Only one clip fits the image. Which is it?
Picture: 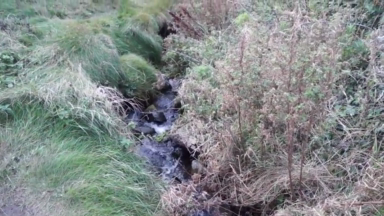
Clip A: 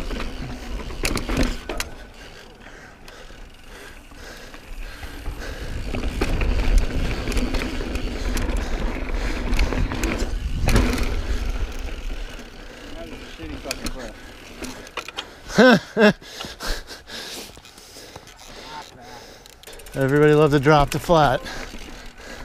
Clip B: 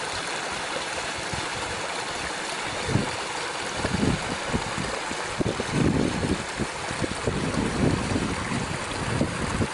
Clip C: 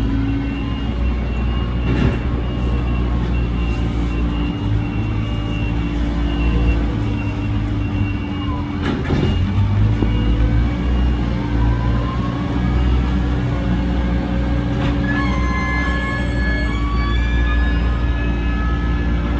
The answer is B